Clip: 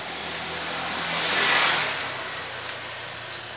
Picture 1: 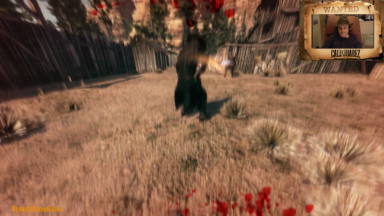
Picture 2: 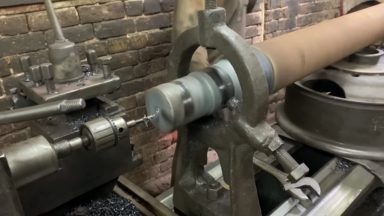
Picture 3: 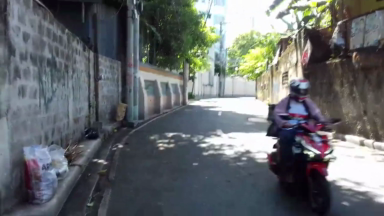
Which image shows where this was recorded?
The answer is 3